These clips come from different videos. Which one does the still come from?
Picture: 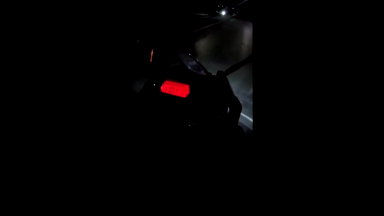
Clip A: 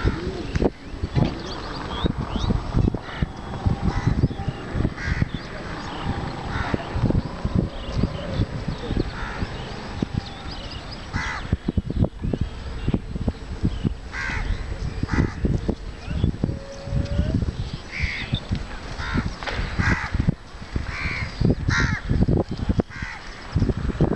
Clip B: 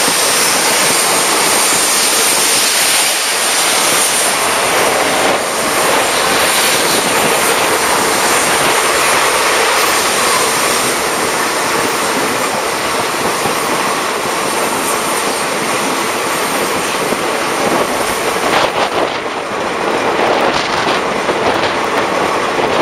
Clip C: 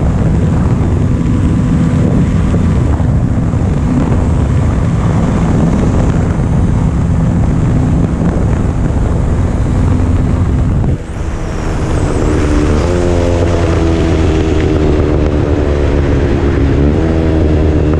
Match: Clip C